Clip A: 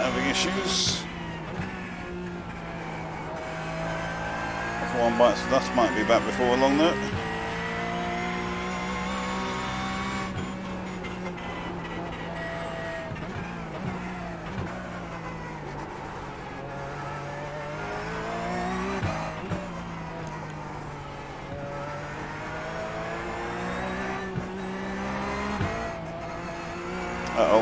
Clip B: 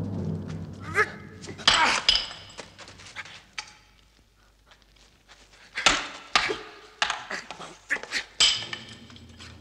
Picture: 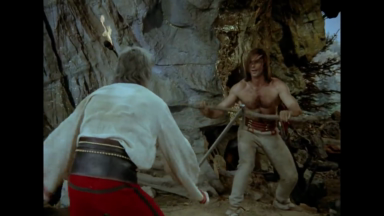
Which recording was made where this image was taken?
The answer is B